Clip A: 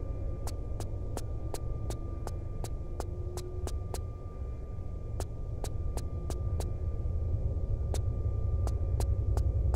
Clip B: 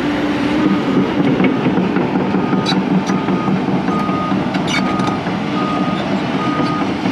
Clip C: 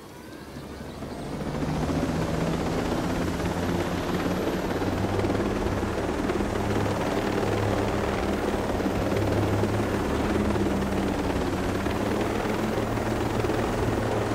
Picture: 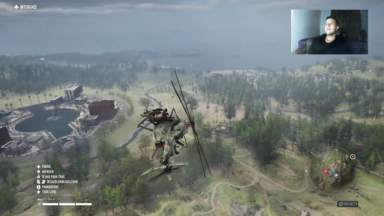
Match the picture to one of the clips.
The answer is C